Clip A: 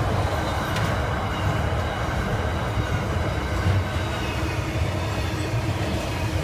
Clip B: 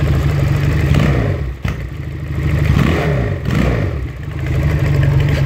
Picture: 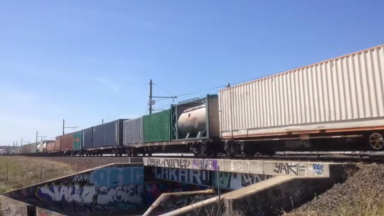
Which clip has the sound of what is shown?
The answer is A